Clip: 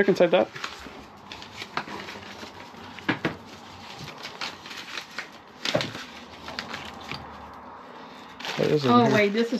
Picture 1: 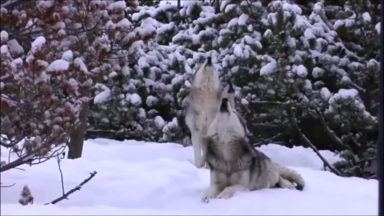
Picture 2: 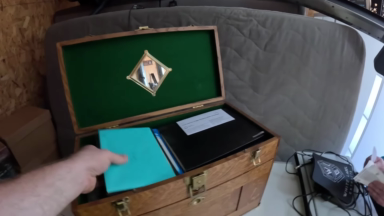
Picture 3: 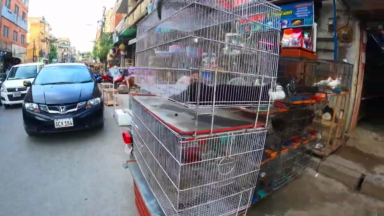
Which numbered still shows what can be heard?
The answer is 2